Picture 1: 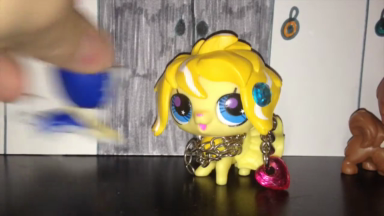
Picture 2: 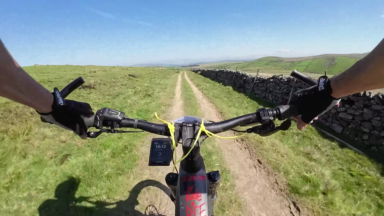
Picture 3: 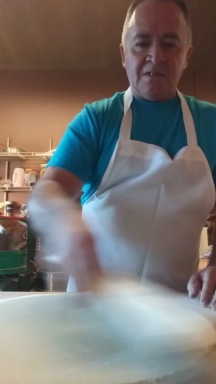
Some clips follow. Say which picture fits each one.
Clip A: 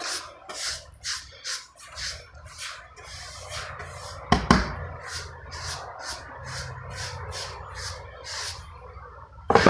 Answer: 3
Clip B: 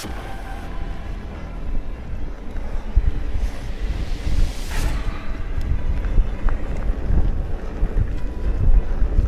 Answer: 2